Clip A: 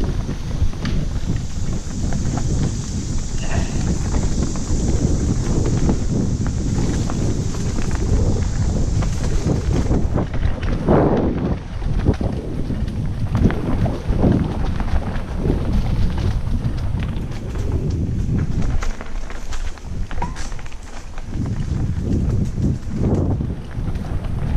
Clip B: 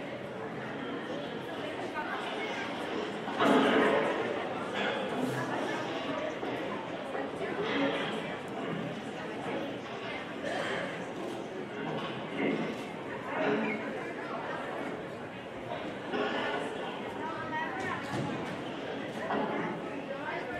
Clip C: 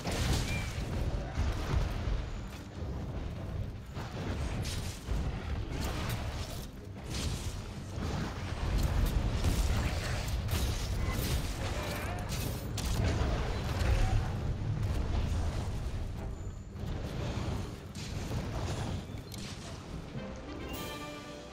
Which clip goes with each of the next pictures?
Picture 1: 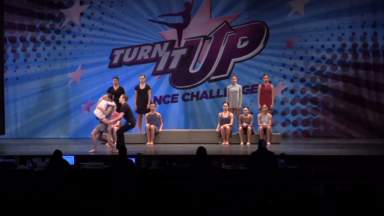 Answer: B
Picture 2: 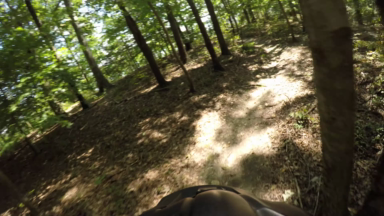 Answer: A